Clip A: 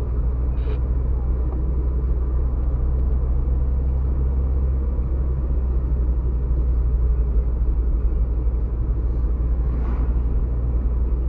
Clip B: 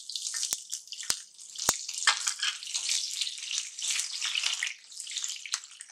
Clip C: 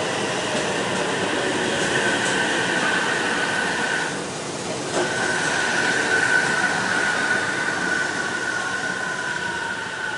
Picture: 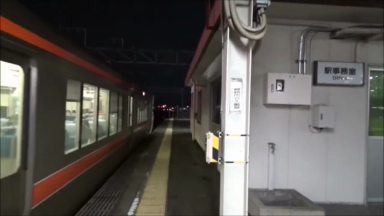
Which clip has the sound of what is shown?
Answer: C